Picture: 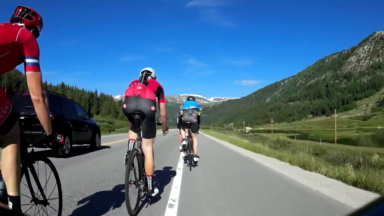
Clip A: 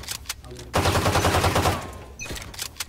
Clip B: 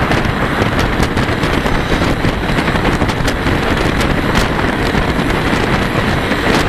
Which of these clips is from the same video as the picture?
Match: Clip B